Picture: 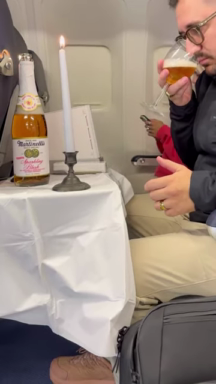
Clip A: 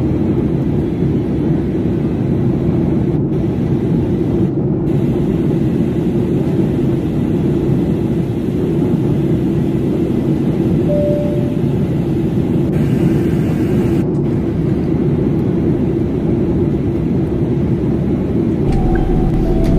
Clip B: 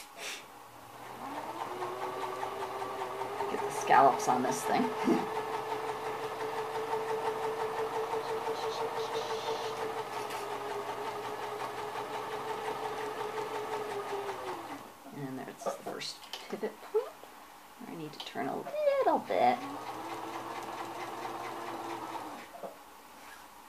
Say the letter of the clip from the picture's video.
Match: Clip A